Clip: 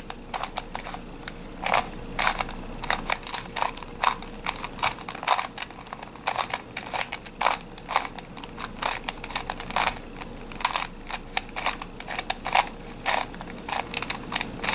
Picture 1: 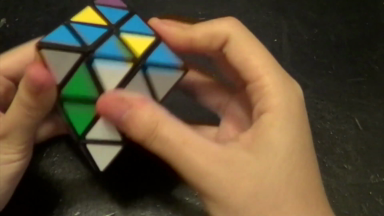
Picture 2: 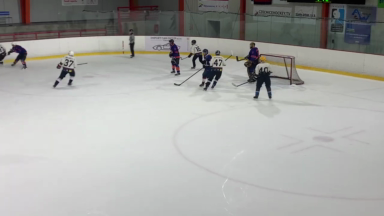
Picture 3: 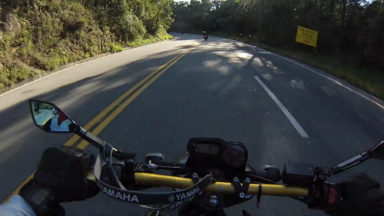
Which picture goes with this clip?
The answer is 1